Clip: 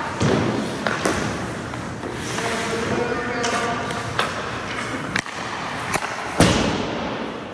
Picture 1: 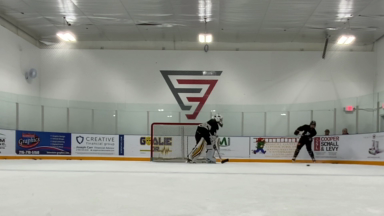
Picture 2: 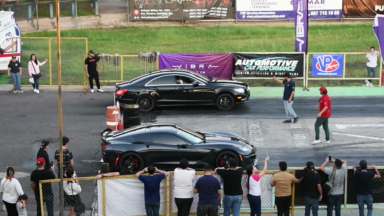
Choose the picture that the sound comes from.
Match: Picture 1